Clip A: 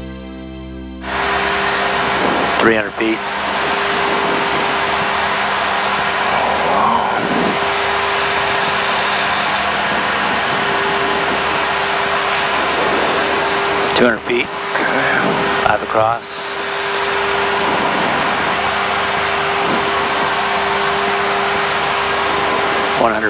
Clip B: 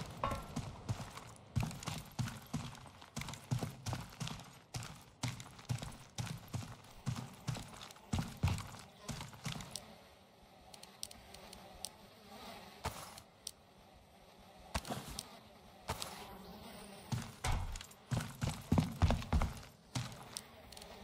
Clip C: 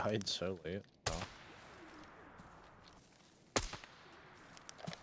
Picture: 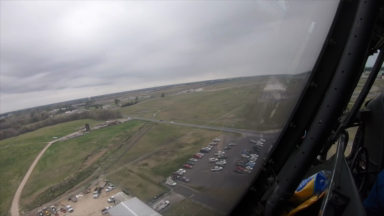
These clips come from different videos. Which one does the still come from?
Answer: A